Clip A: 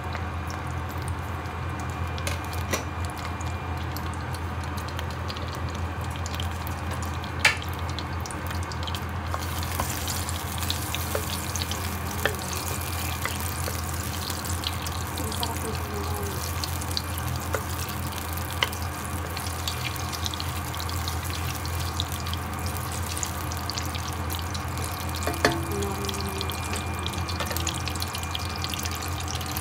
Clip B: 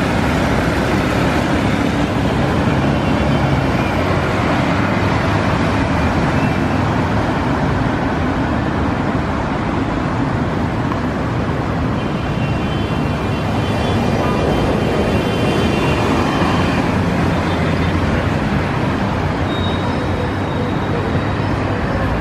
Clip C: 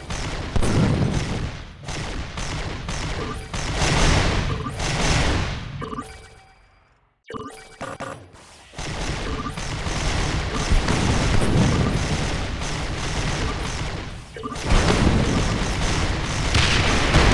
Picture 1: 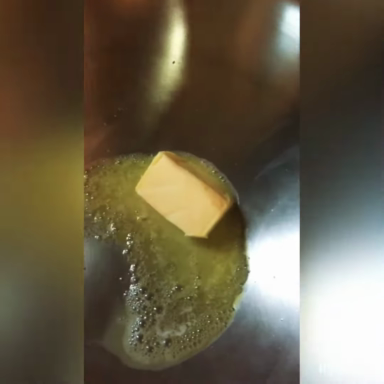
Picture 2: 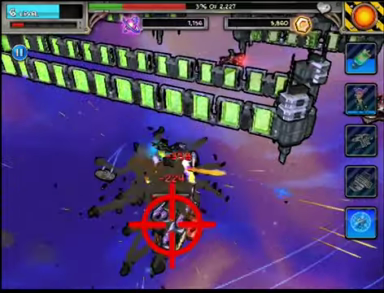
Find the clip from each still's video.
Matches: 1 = A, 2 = C